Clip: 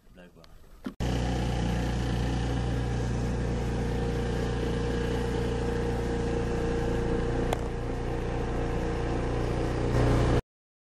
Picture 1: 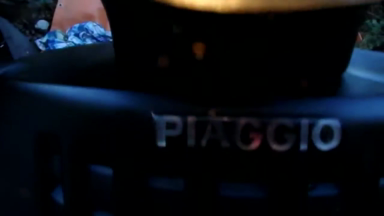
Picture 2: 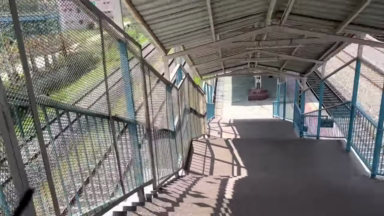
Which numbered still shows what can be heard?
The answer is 1